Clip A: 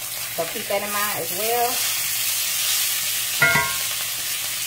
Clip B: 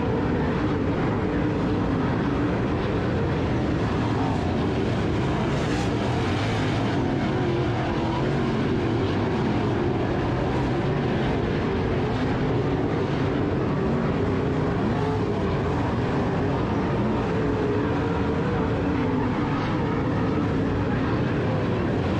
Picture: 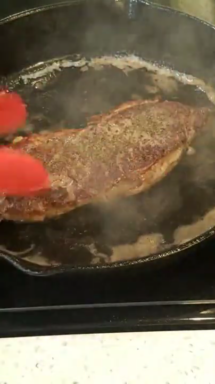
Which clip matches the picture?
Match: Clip A